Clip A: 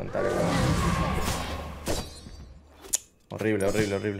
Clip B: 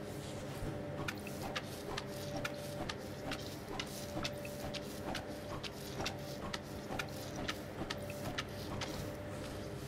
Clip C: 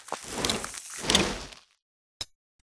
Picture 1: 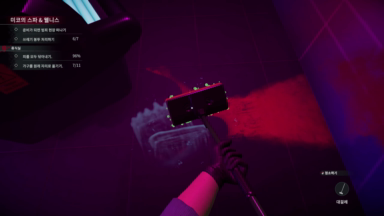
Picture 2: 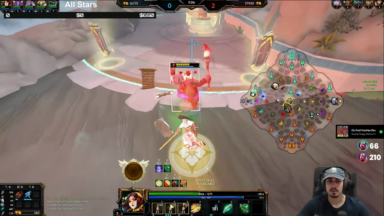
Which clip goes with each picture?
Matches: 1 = B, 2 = A